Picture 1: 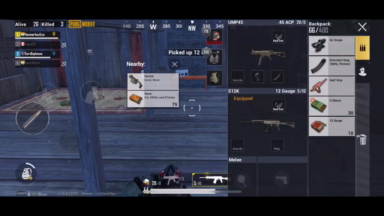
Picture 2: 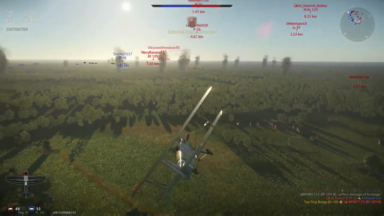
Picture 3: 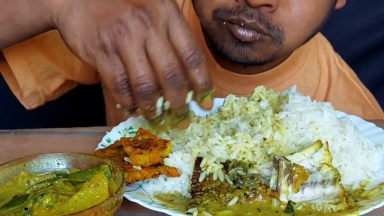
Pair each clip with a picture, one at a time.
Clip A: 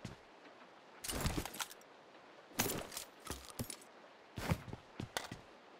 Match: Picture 1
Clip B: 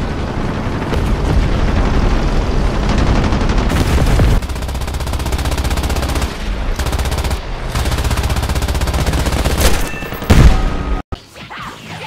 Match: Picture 2